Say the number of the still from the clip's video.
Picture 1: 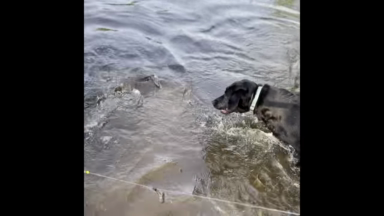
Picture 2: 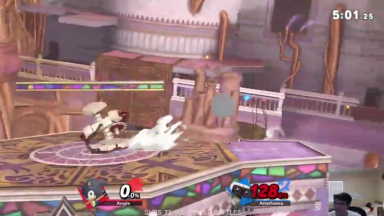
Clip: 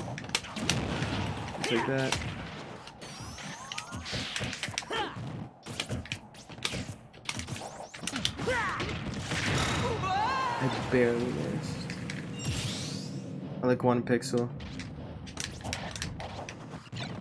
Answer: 2